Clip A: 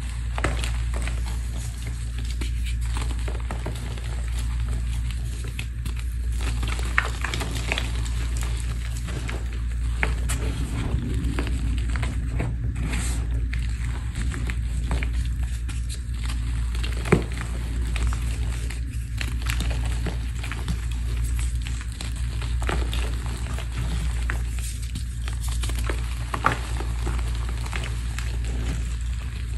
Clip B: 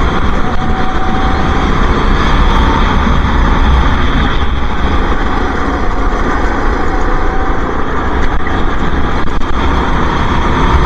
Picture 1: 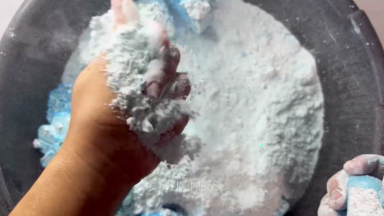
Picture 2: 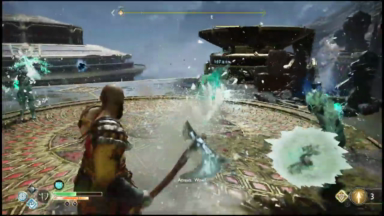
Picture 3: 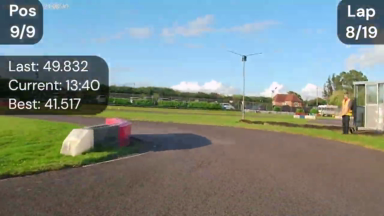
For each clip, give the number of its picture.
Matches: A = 1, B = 3